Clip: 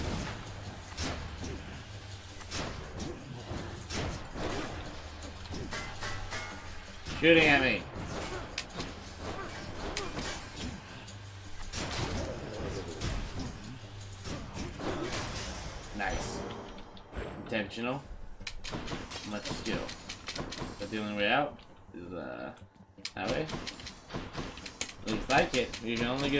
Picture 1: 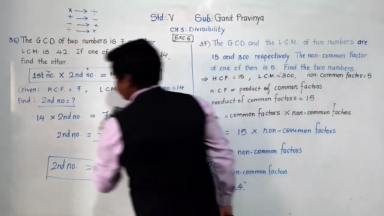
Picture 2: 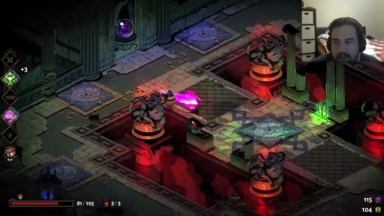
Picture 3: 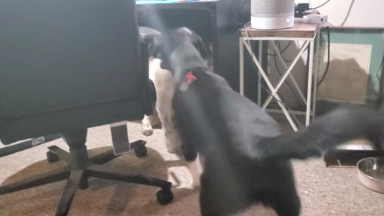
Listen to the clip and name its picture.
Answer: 2